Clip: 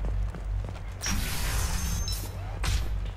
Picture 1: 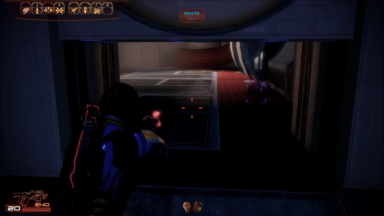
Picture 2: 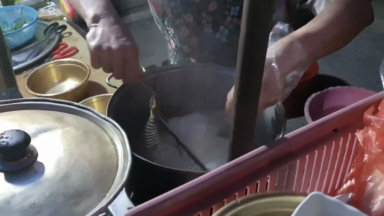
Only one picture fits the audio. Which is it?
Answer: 1